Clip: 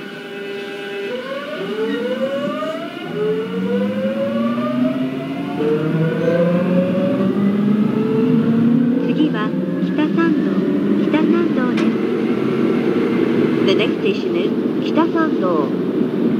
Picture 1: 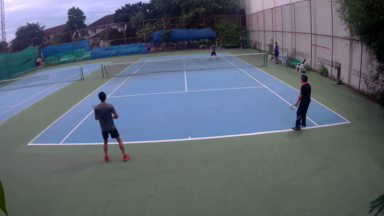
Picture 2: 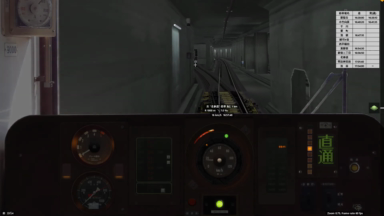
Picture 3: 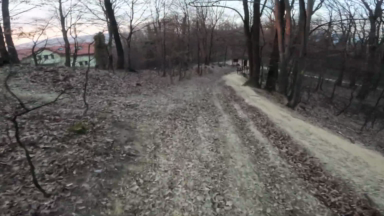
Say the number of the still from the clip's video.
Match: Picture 2